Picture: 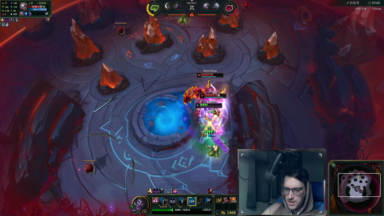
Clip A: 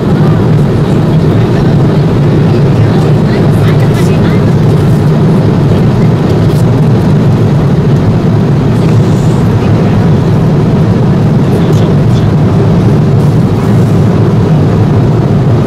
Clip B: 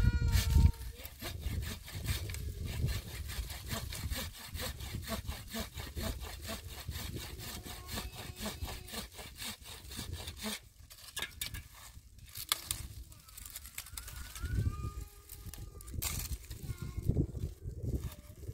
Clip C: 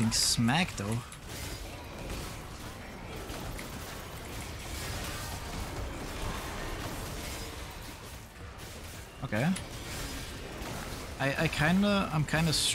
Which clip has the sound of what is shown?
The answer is C